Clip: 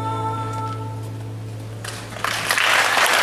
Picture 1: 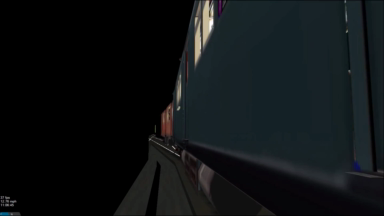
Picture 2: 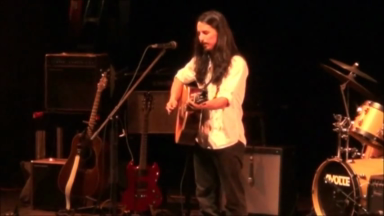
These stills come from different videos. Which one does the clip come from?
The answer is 2